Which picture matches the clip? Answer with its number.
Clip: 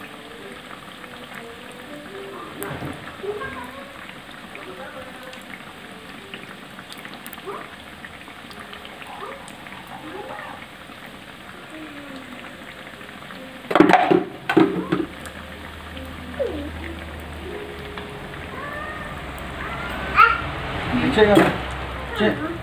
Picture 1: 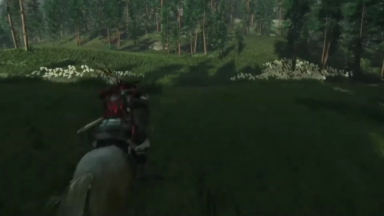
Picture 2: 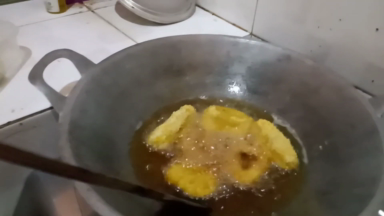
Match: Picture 2